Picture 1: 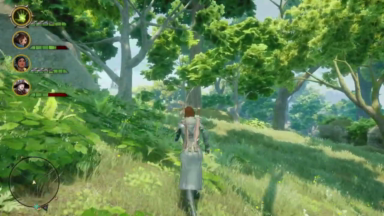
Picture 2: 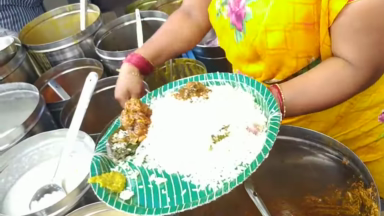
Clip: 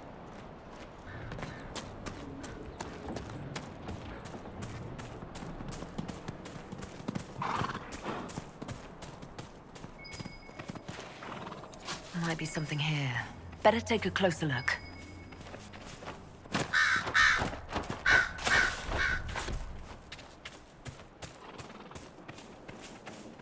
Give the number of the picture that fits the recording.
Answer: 1